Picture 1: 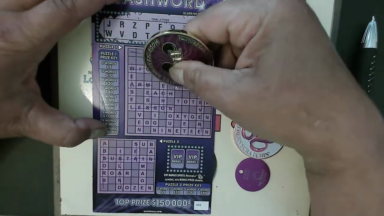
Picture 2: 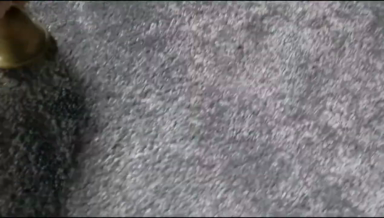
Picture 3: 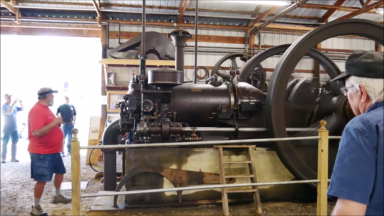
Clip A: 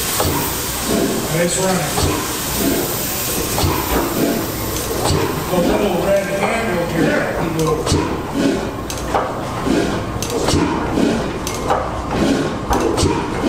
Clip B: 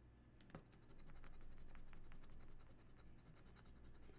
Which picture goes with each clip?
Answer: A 3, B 1